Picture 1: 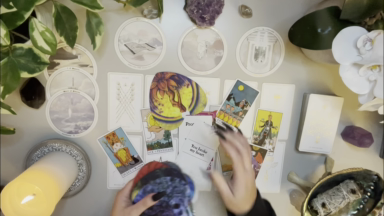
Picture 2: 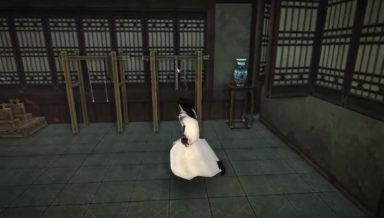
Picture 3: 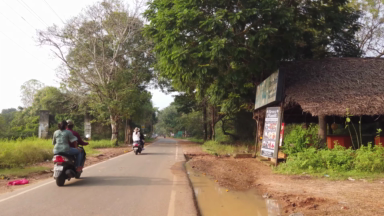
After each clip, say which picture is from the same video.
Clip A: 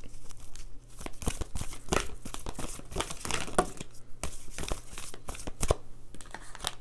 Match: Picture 1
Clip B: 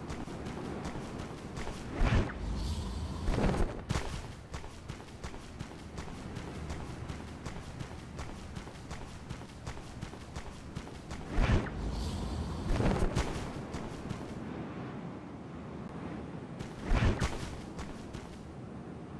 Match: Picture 2